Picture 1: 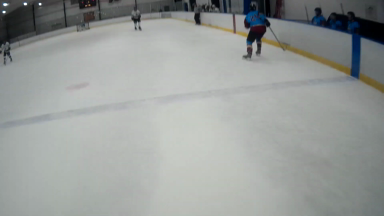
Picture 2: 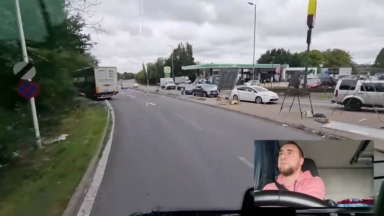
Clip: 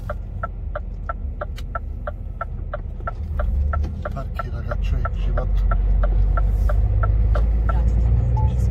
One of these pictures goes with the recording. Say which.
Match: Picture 2